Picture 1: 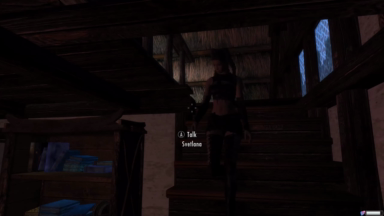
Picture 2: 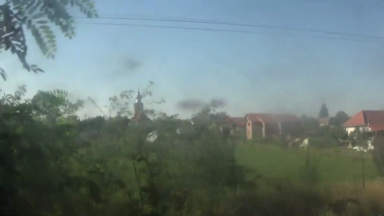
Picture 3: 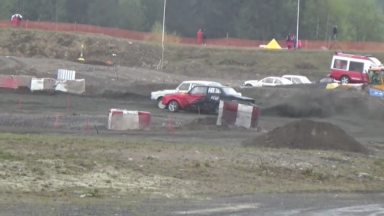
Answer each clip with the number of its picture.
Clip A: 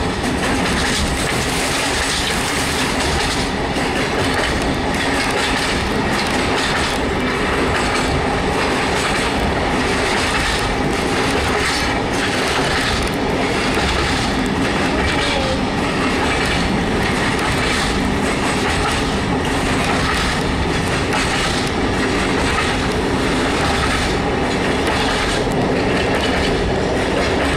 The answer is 2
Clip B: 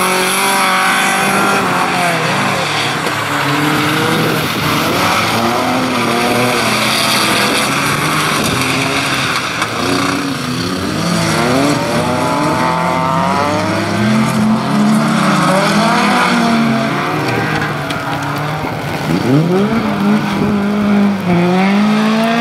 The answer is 3